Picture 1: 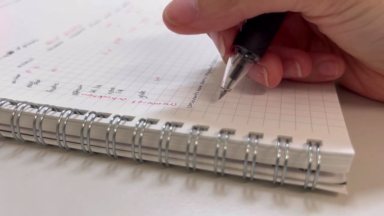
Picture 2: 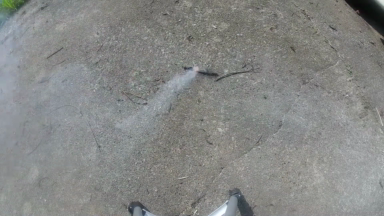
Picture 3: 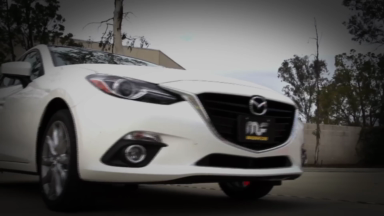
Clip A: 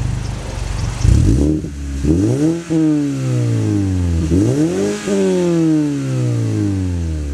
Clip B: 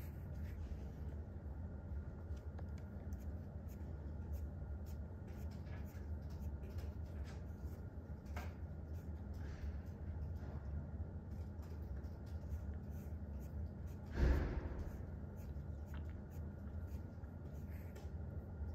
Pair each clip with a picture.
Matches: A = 3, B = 1